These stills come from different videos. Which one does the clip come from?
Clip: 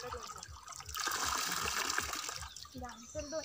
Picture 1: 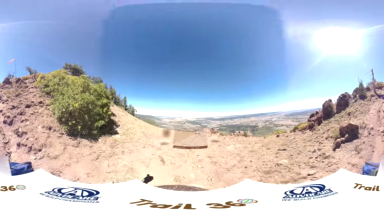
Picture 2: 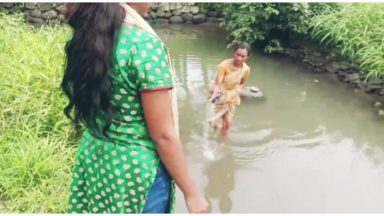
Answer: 2